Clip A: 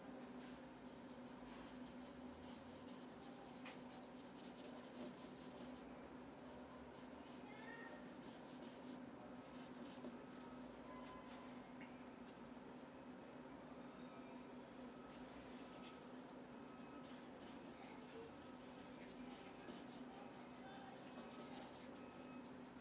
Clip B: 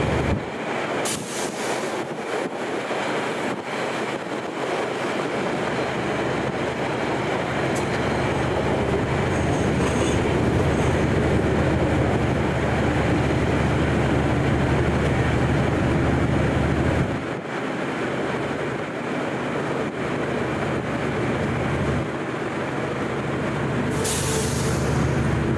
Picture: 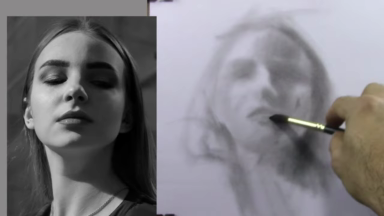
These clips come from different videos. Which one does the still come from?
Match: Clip A